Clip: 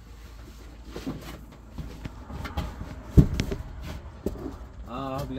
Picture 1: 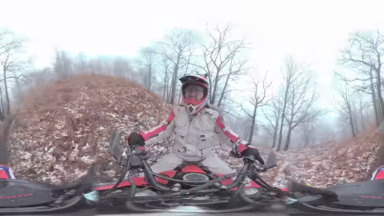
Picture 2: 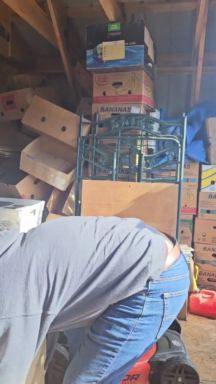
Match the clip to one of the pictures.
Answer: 2